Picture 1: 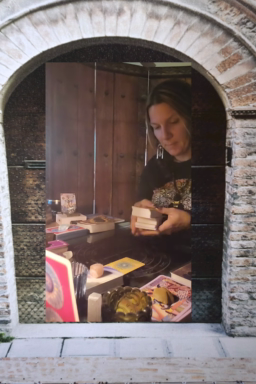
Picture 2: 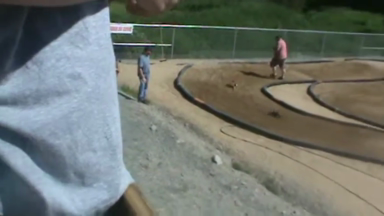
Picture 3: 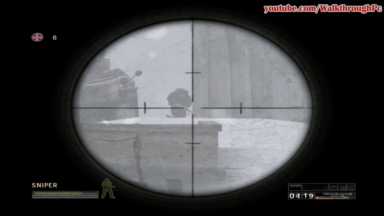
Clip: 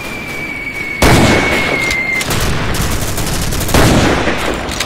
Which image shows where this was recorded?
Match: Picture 3